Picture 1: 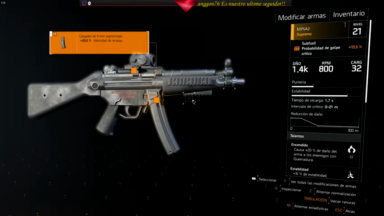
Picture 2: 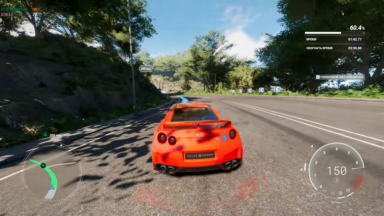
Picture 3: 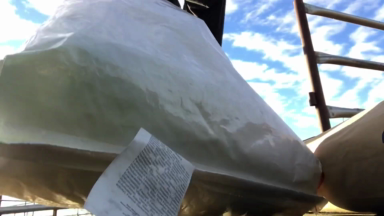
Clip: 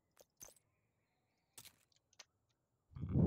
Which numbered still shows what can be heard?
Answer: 1